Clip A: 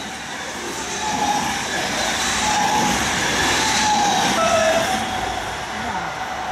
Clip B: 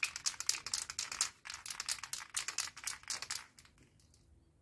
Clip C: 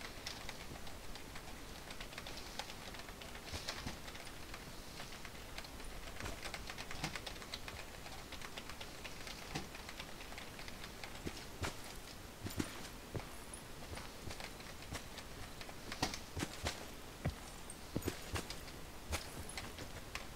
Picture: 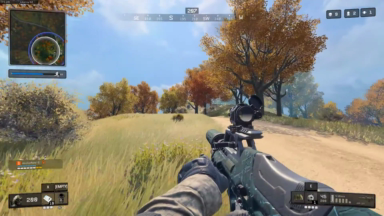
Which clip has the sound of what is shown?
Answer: C